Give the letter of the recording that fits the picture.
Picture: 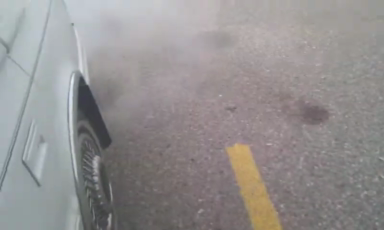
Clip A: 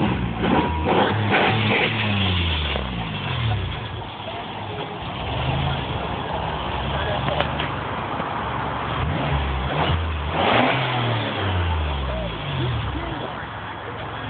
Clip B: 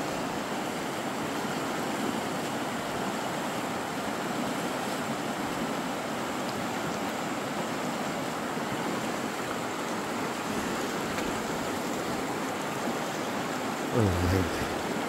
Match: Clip A